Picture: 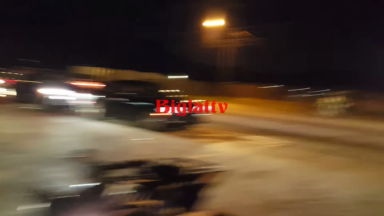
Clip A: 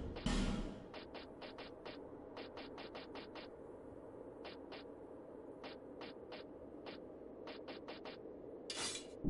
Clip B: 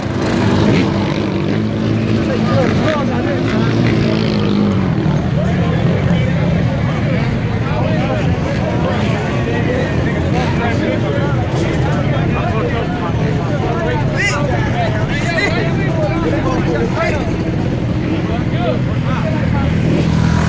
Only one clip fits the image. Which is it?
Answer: B